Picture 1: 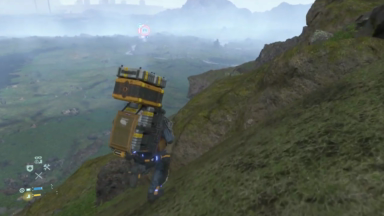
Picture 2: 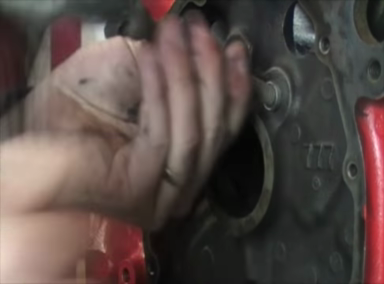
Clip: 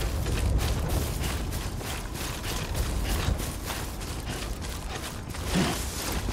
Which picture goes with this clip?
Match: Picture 1